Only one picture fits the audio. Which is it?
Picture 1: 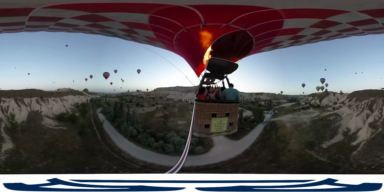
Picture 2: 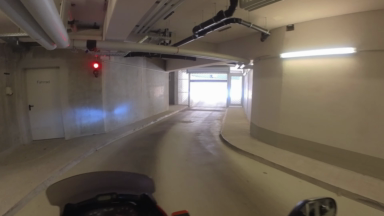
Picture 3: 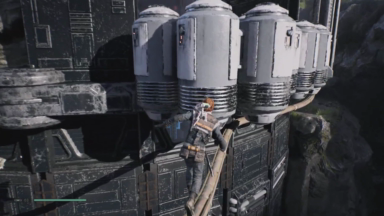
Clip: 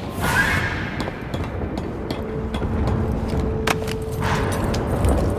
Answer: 3